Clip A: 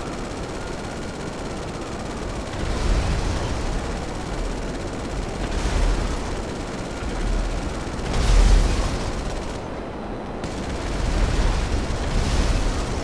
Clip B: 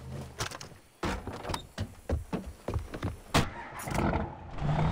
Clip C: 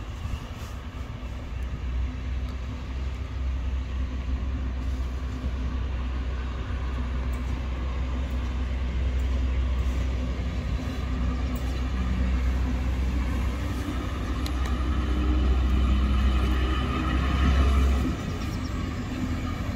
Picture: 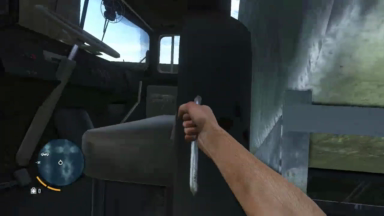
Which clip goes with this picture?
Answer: B